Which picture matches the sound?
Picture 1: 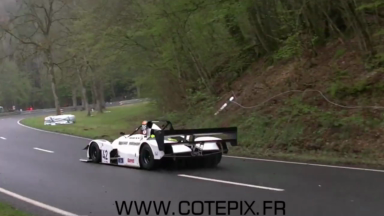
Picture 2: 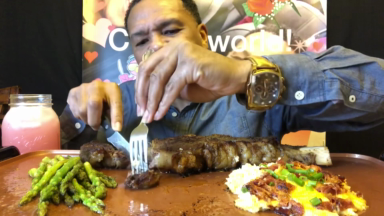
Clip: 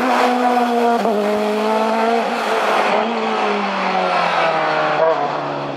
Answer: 1